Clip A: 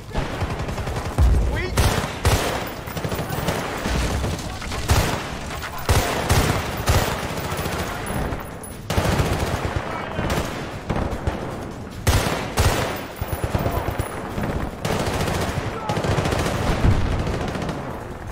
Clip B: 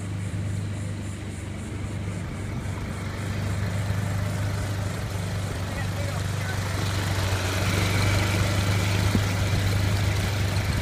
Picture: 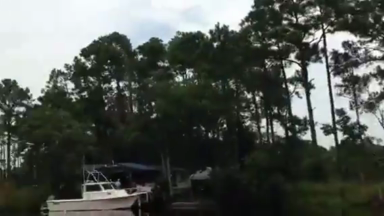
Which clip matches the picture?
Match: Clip B